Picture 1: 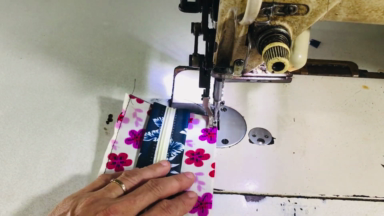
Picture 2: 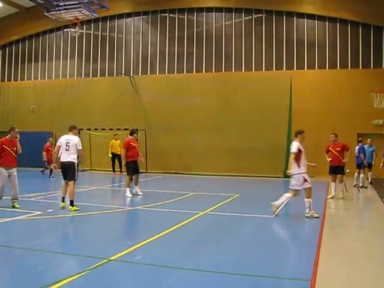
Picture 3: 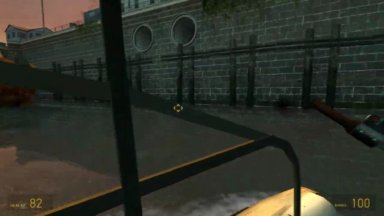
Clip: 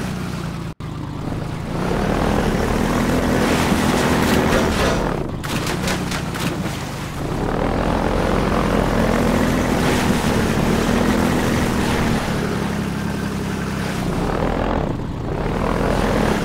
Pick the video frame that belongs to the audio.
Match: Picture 3